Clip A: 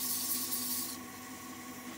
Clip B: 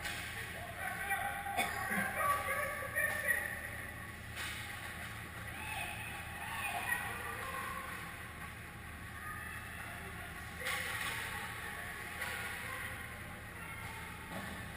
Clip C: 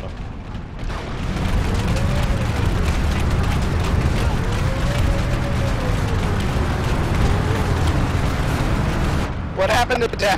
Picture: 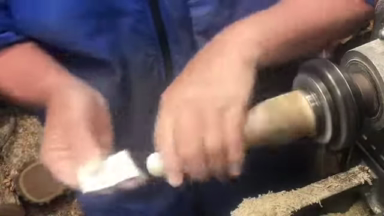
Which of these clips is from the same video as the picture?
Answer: A